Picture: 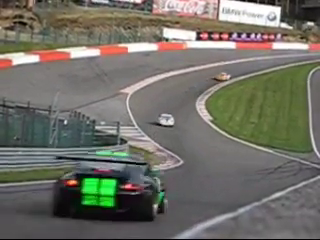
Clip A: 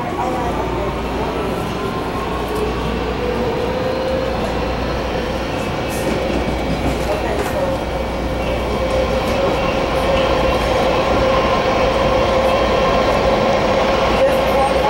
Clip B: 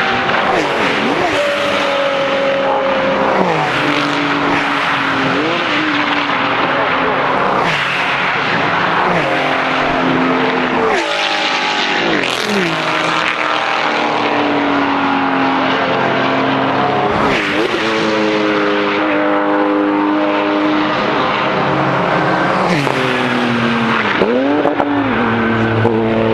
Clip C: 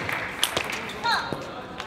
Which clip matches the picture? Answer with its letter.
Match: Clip B